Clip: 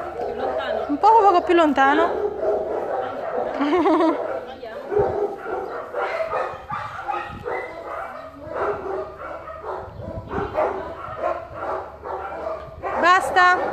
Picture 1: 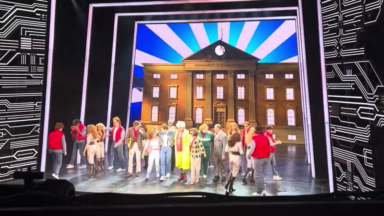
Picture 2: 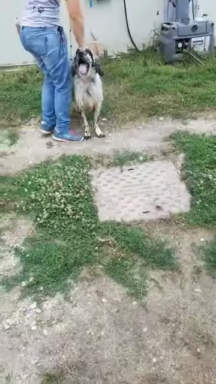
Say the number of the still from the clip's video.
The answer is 2